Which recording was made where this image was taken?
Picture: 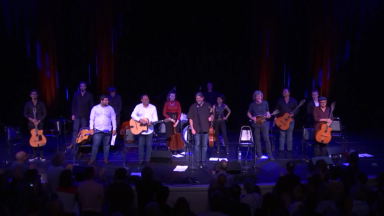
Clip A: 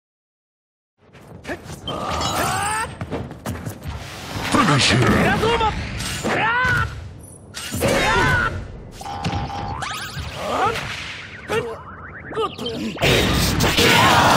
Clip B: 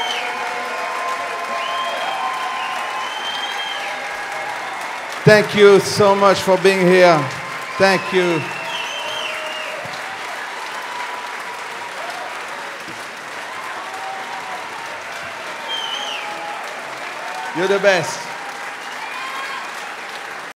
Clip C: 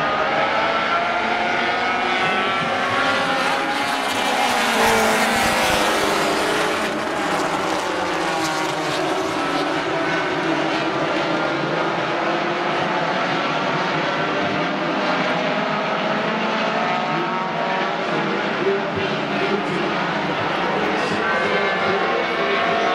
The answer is B